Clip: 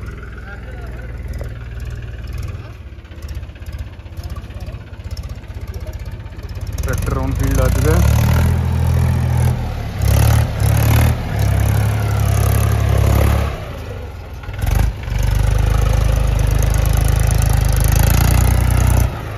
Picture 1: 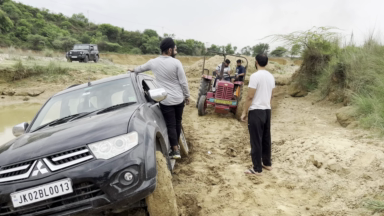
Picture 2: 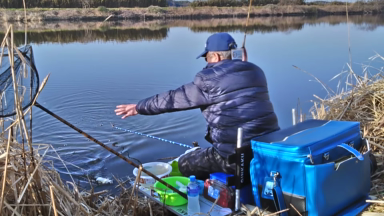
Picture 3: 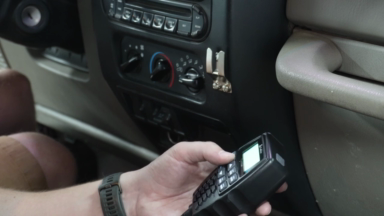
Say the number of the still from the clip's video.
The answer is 1